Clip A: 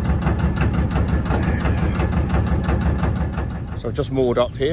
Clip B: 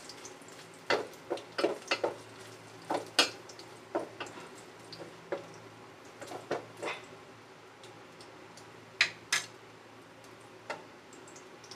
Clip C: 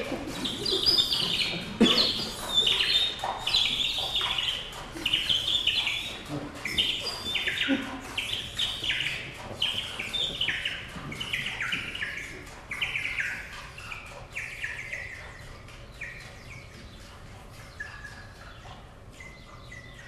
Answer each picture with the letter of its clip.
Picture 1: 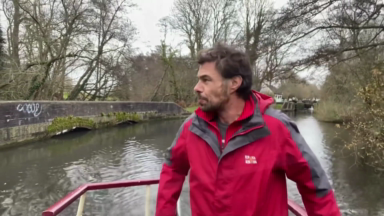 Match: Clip A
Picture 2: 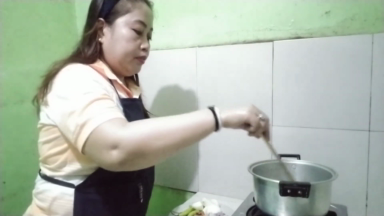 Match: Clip B